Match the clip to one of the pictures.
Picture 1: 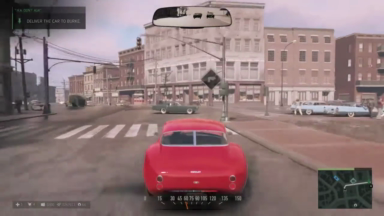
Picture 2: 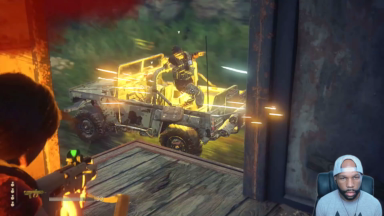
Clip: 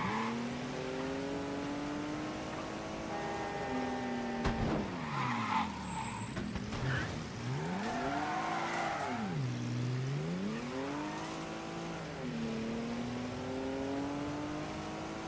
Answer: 1